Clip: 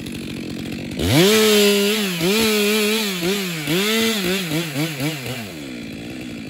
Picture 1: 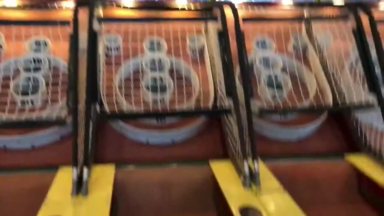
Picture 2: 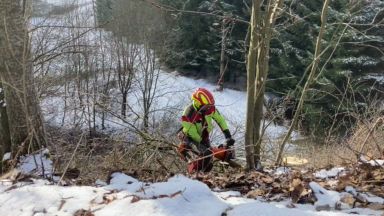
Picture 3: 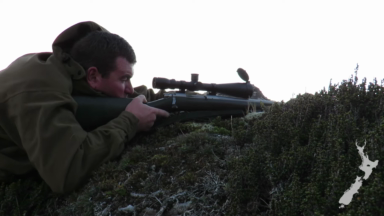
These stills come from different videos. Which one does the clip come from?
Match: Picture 2